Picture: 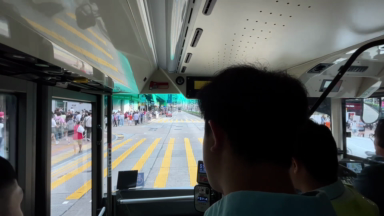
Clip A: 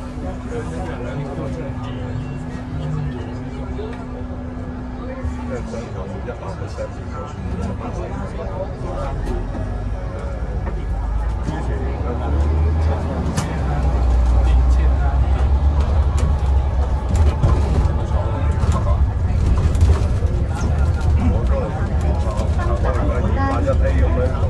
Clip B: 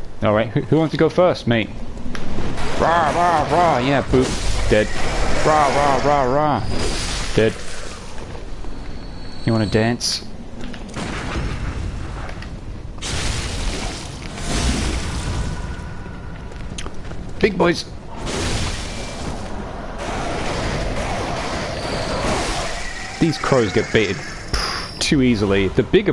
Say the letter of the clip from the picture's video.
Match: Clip A